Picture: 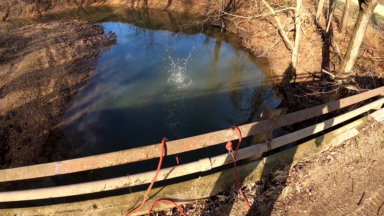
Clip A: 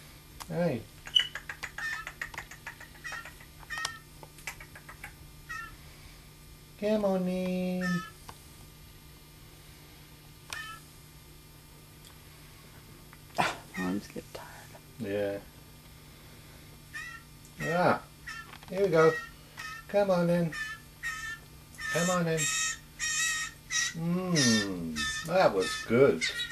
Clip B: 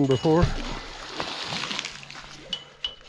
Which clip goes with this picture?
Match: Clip B